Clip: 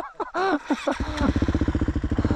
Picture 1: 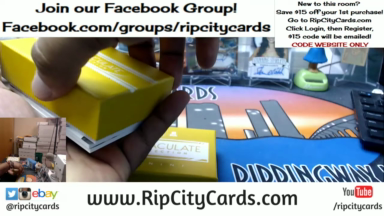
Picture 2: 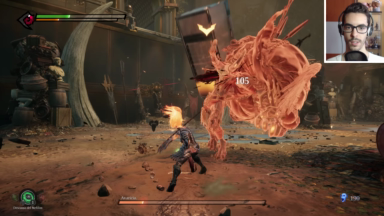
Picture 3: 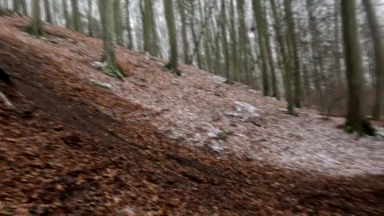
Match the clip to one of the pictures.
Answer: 3